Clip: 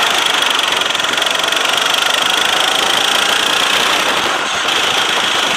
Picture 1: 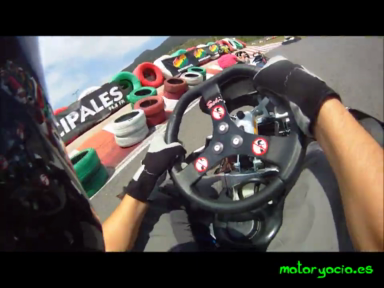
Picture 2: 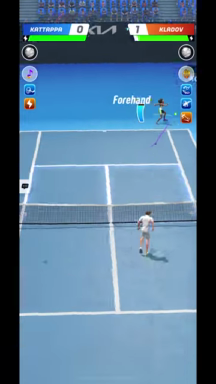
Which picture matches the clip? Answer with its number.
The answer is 1